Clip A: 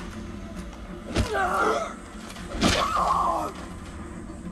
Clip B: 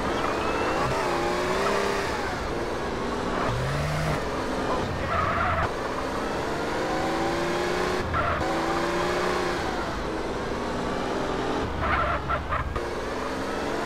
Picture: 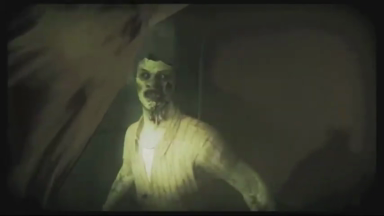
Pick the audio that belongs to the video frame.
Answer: A